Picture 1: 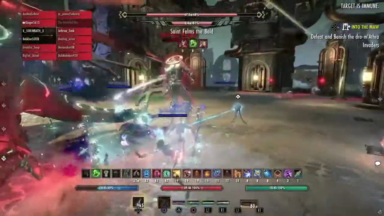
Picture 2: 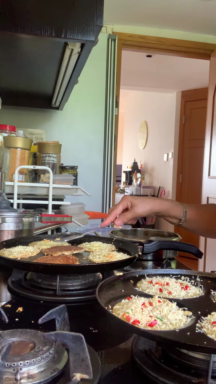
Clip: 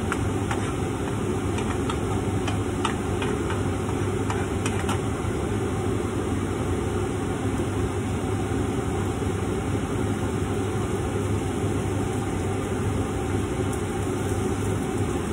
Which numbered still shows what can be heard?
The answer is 2